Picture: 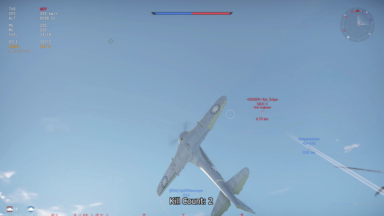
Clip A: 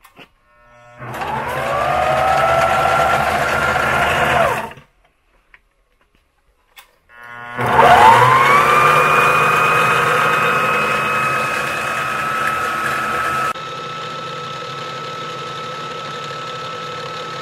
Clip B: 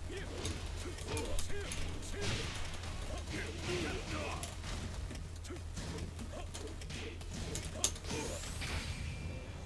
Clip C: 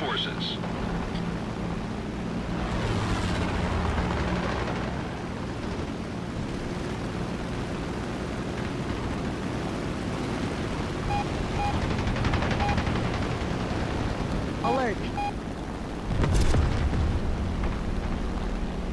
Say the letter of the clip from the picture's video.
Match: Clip C